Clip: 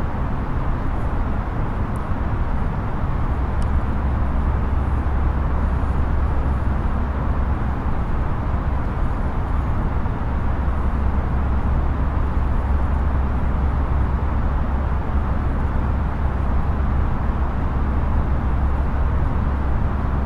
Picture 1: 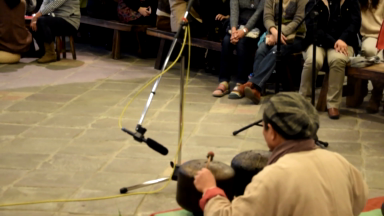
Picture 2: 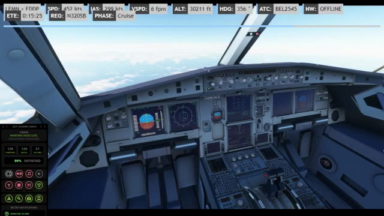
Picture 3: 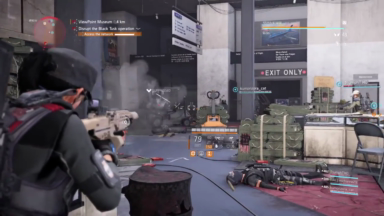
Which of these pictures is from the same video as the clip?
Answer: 2